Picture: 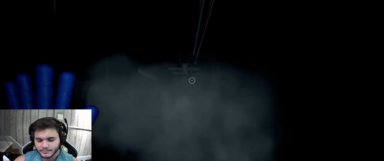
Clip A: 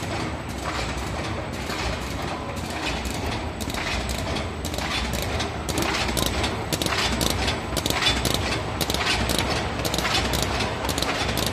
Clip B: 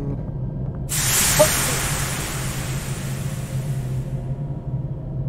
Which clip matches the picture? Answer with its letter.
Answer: B